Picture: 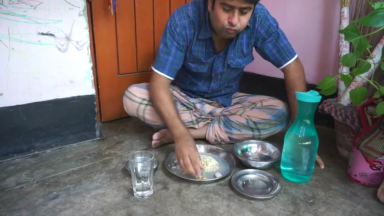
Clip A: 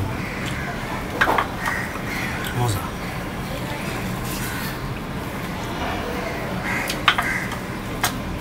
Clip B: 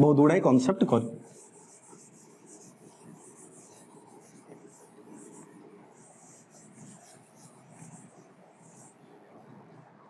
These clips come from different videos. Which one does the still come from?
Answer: A